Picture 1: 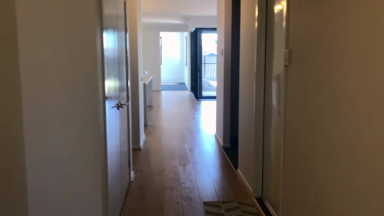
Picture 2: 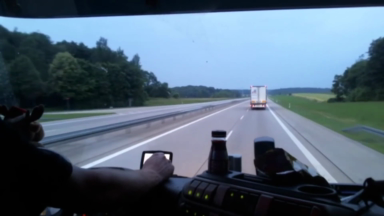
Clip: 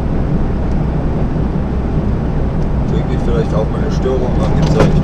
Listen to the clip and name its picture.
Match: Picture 2